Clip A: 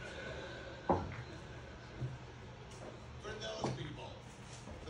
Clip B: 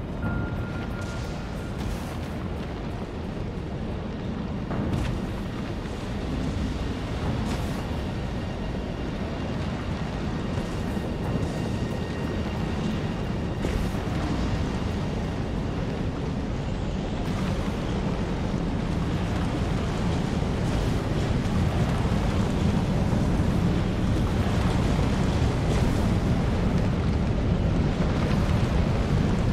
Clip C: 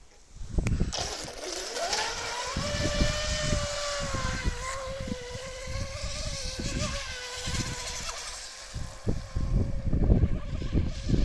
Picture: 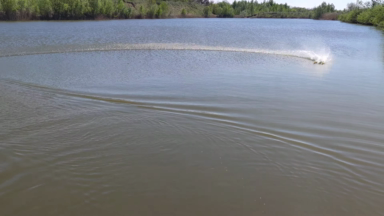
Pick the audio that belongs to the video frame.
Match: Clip C